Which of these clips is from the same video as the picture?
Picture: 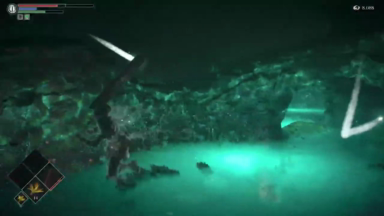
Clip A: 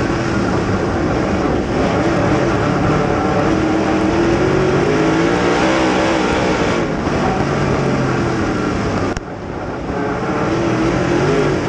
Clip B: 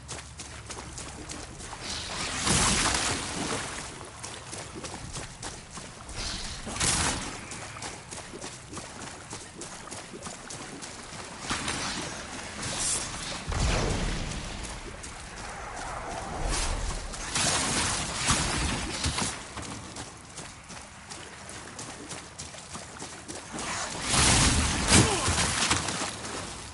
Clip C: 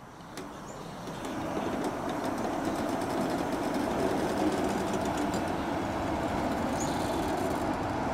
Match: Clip B